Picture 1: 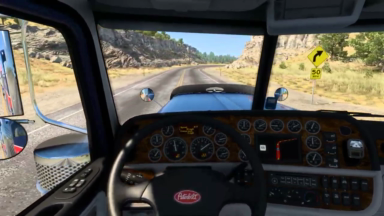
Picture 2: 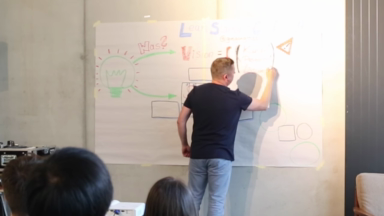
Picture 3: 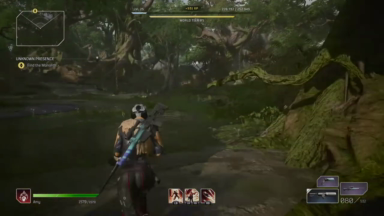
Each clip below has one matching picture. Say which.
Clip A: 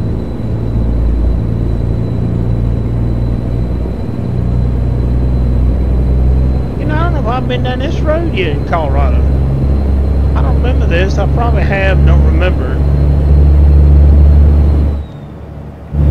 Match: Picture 1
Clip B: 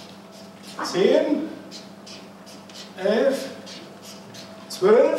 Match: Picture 2